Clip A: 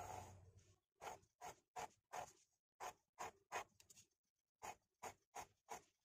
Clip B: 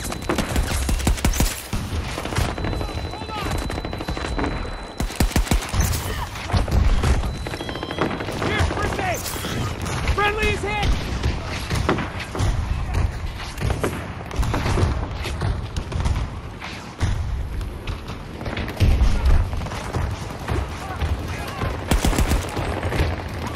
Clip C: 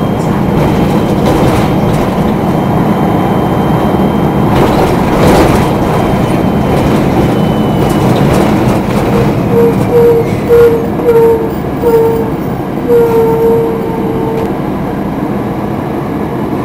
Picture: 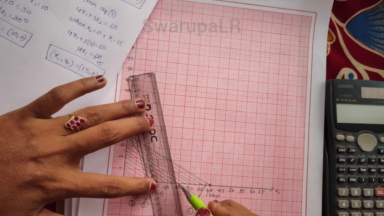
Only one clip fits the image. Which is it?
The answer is A